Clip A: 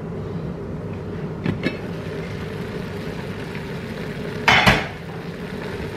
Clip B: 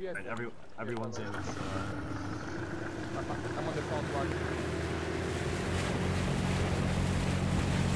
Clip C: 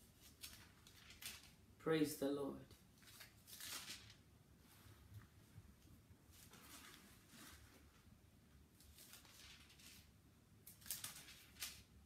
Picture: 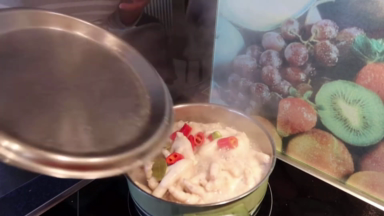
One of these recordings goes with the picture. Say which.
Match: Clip A